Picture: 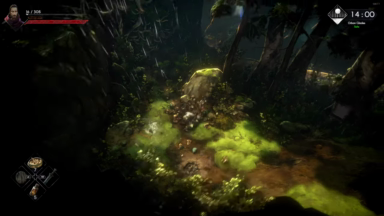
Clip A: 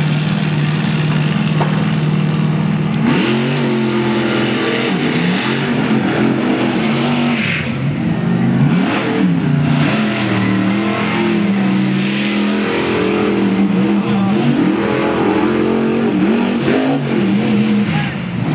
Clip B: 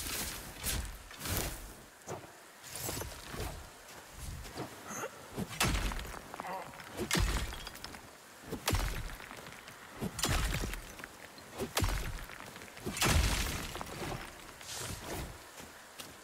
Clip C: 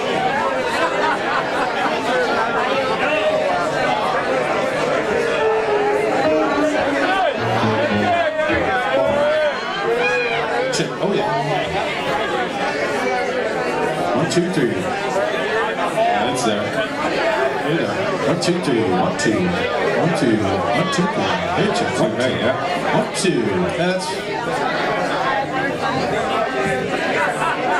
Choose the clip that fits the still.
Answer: B